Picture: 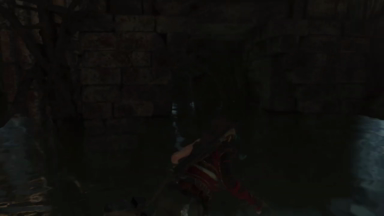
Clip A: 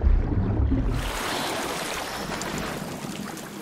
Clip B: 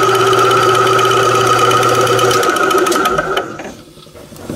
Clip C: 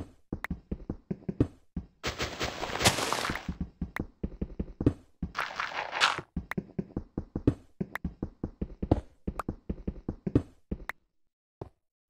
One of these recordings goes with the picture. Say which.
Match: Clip A